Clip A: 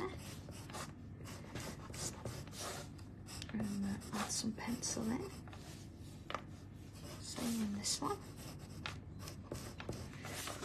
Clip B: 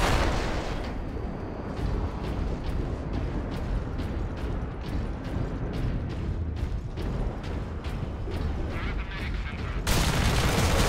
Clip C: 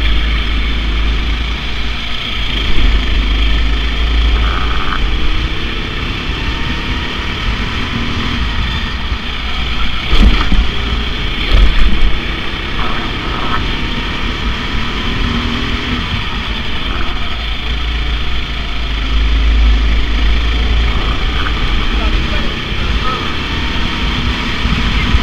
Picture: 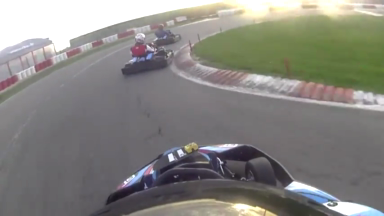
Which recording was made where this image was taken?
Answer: C